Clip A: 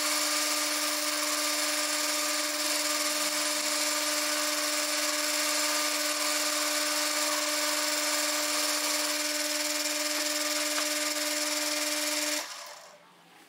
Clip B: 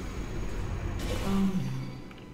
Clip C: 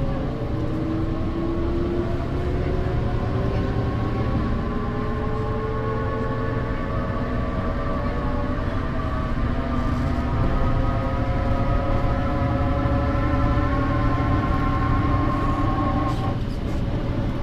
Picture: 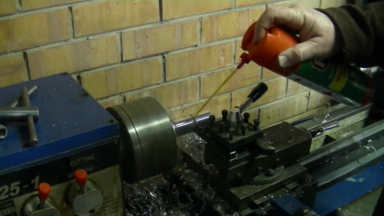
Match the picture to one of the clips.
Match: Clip A